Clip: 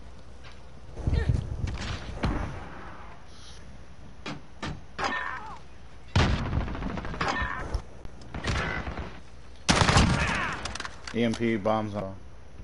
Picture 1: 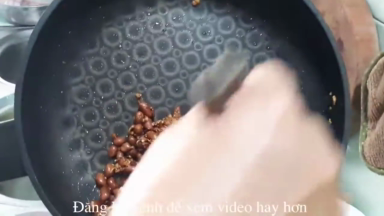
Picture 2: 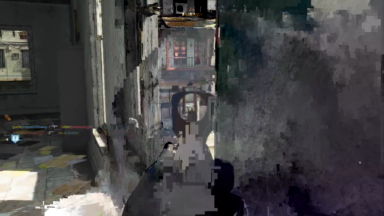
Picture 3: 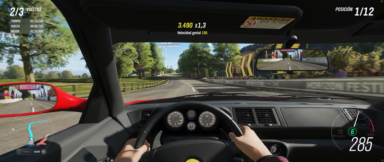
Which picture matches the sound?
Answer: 2